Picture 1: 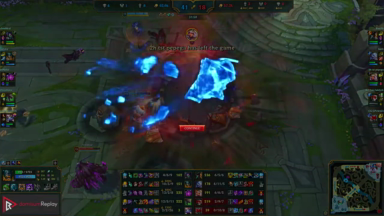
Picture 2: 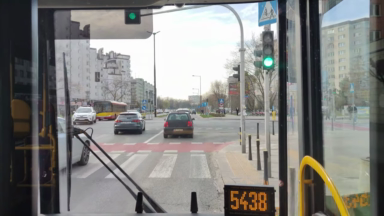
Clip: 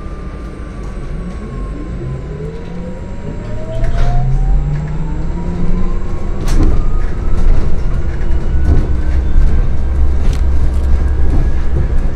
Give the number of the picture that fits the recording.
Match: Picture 2